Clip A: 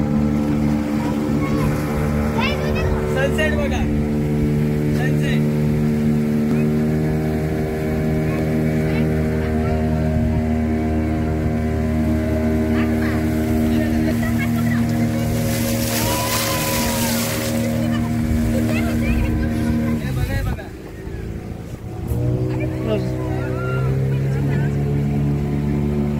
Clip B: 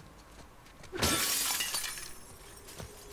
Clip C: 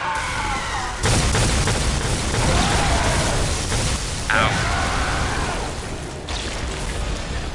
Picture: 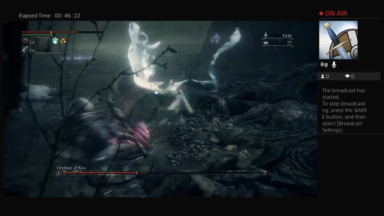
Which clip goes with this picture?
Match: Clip C